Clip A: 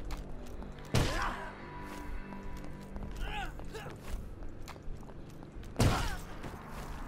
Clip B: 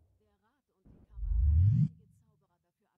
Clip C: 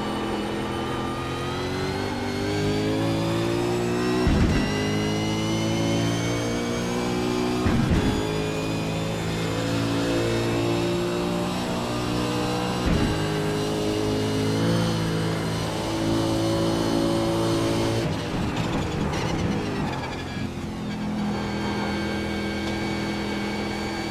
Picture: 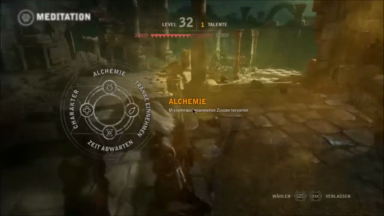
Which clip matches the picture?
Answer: B